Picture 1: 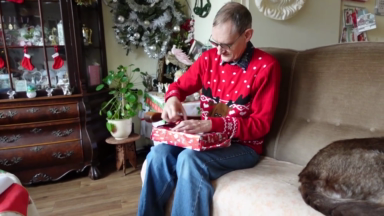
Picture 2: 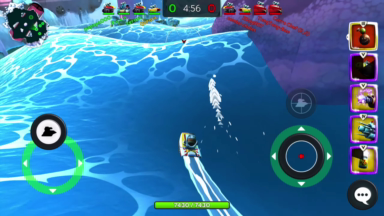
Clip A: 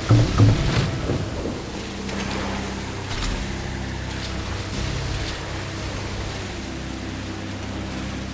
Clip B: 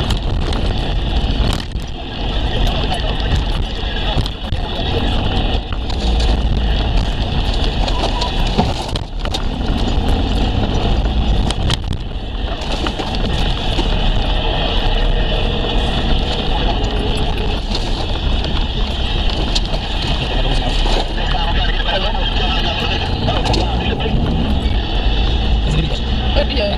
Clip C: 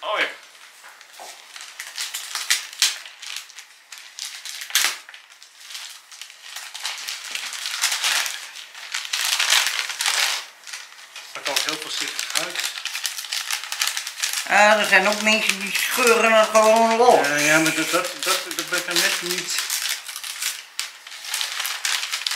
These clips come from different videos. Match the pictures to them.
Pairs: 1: C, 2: A